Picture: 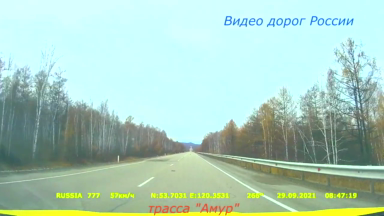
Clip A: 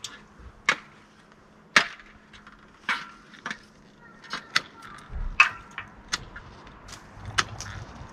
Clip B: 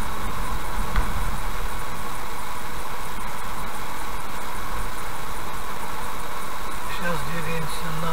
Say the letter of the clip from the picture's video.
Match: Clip B